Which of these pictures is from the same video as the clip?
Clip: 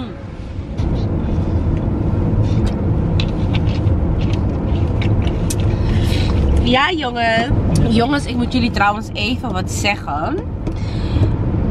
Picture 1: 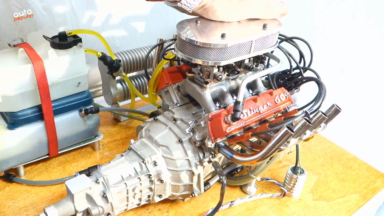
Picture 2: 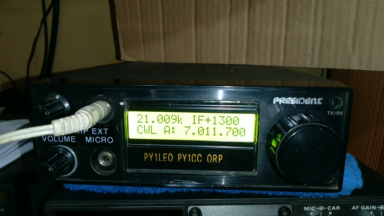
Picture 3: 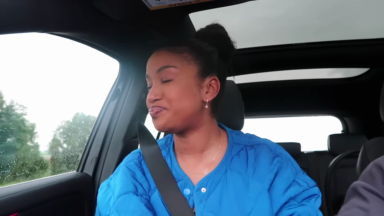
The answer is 3